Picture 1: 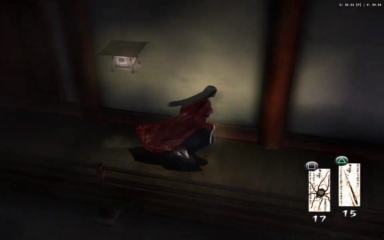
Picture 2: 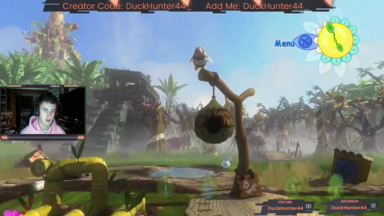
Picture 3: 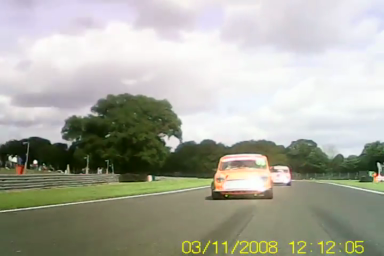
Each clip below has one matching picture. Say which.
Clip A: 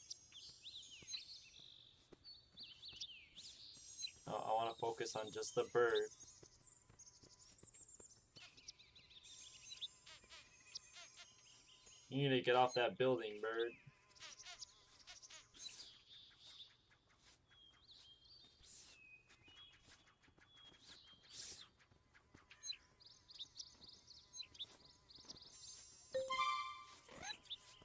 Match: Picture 2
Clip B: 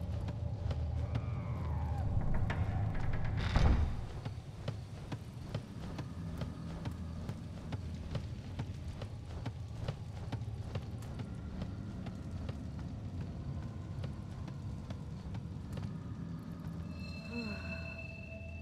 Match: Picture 1